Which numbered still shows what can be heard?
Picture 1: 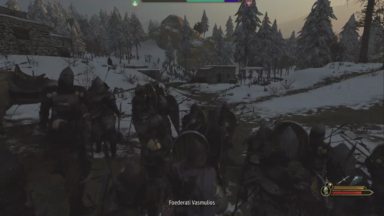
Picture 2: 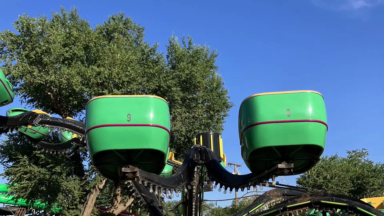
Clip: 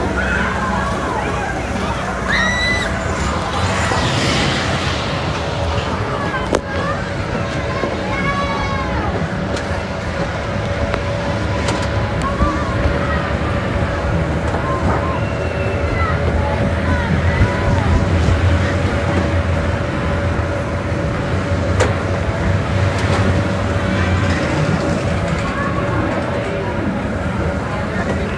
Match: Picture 2